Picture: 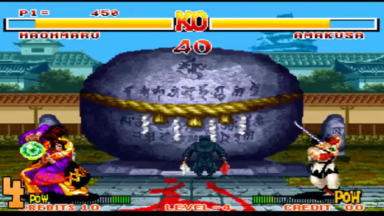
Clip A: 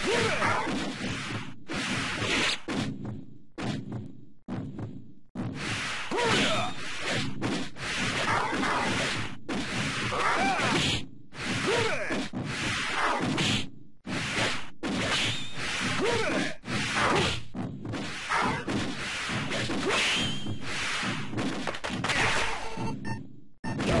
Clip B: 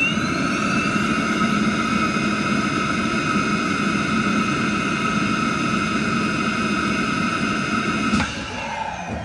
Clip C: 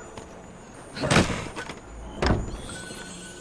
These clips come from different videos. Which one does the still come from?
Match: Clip A